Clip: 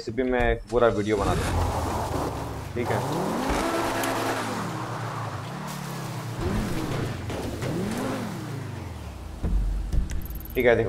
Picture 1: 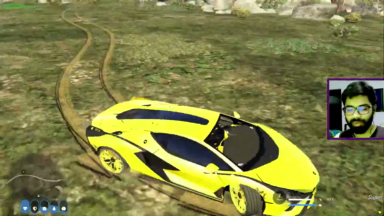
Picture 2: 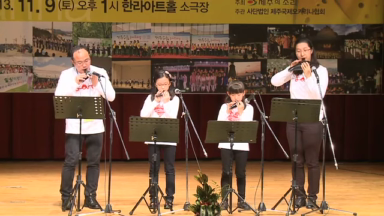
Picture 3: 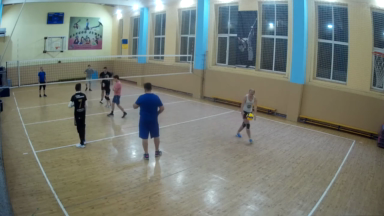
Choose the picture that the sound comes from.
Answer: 1